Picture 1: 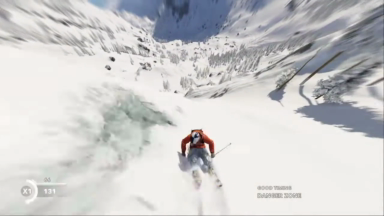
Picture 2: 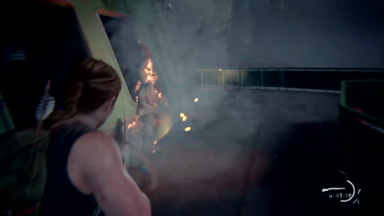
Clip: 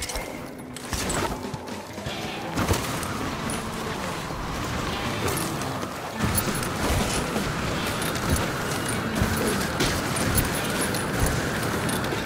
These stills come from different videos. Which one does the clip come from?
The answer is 1